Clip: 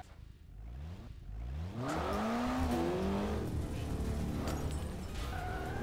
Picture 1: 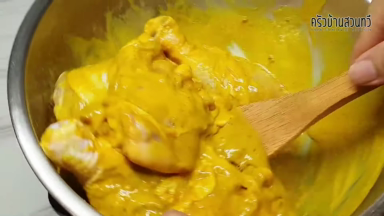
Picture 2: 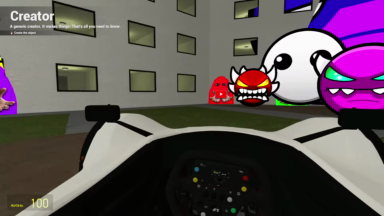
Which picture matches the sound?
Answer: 2